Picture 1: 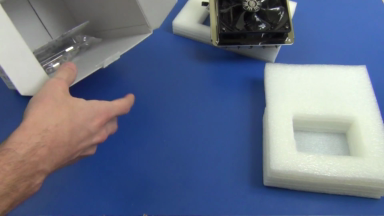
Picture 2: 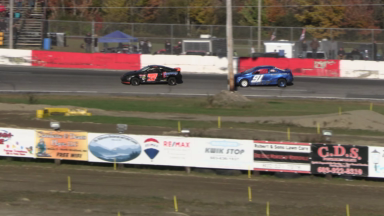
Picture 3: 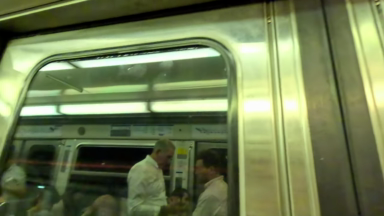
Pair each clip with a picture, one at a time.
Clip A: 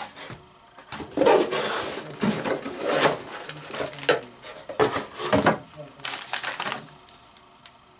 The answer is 1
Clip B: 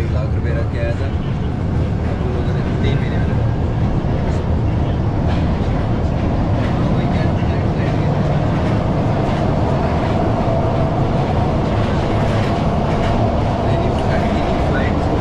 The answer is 3